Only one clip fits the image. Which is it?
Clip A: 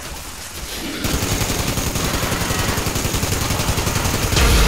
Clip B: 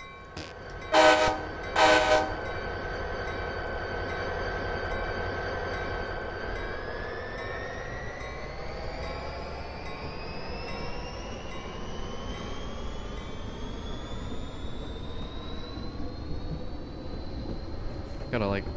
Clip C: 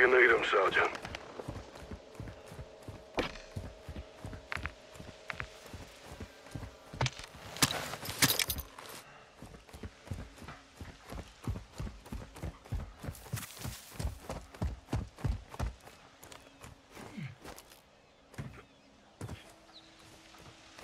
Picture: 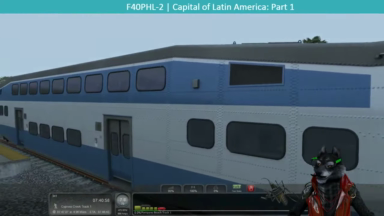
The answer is B